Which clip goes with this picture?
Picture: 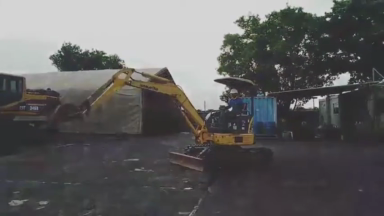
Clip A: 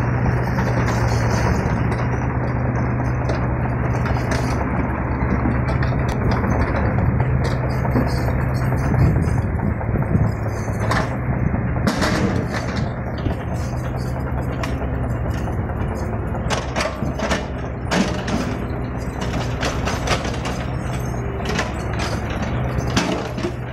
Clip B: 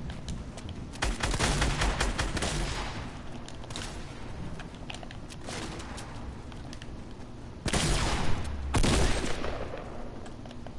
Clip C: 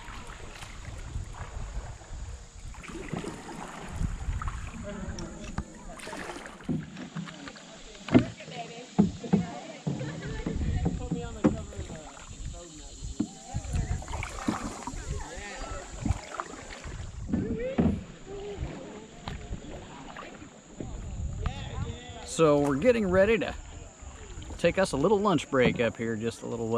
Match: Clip A